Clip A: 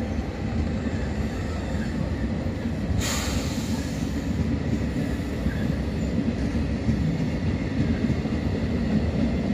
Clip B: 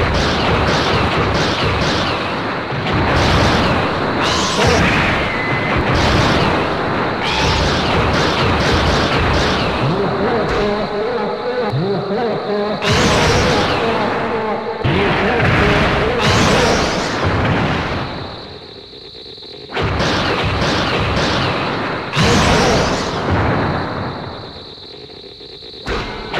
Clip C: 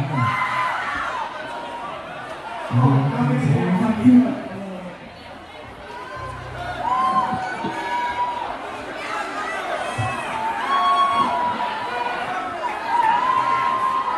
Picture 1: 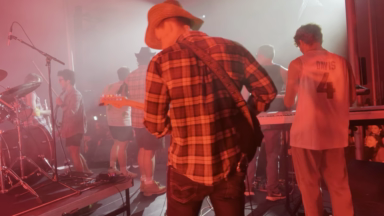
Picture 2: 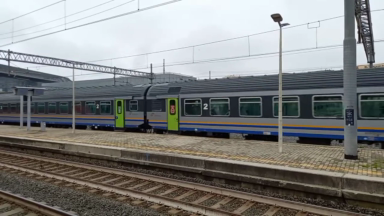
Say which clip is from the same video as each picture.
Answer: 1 C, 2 A